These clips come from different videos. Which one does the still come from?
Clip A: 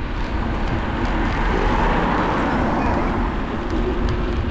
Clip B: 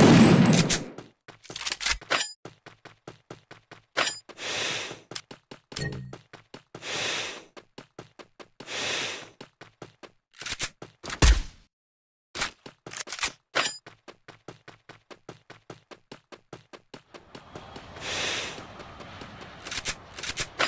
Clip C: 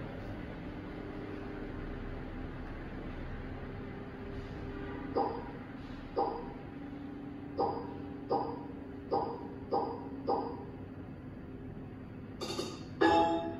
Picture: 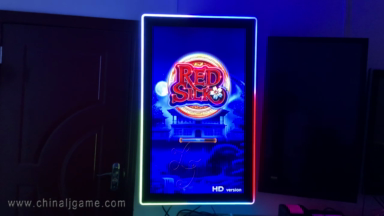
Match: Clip C